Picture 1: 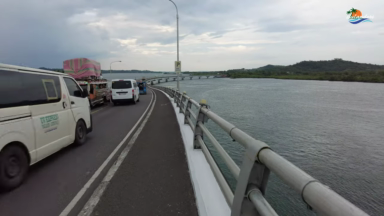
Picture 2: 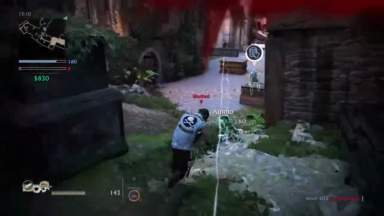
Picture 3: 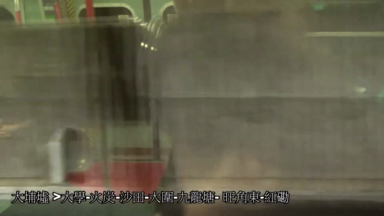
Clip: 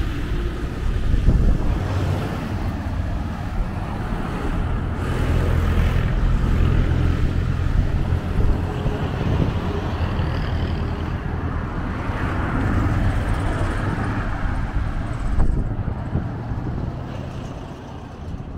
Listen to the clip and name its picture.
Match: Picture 1